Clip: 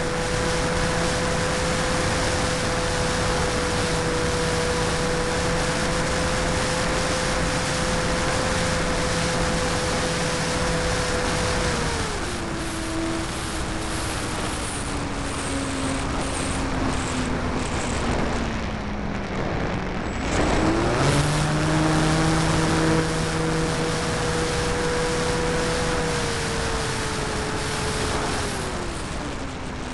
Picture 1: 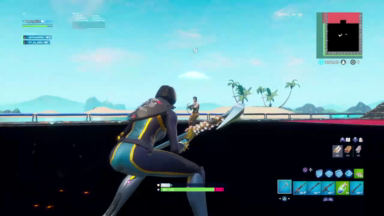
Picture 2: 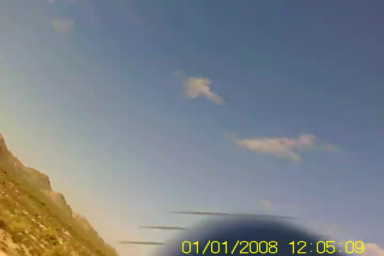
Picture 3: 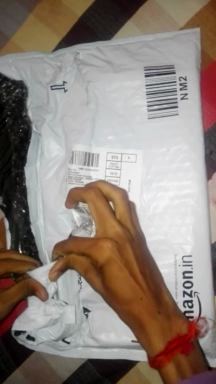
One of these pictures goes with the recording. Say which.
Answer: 2